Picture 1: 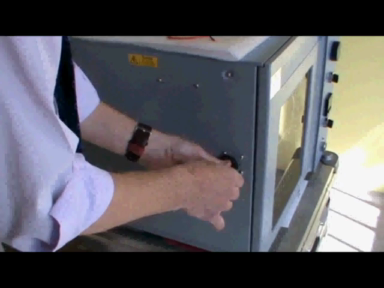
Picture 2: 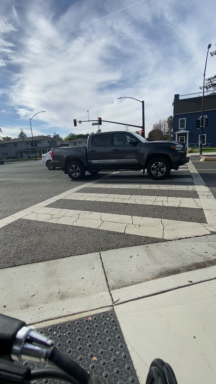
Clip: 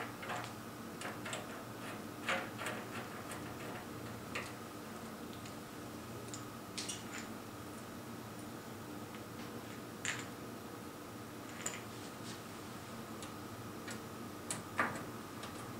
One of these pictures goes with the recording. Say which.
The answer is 1